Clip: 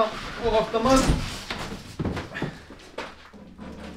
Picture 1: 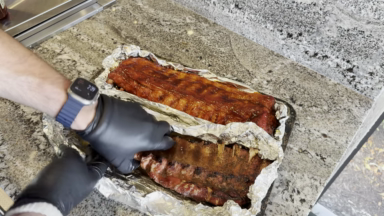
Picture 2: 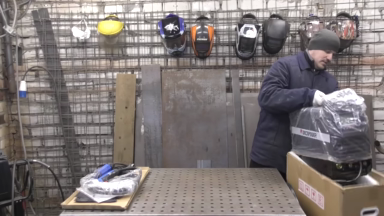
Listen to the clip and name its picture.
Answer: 2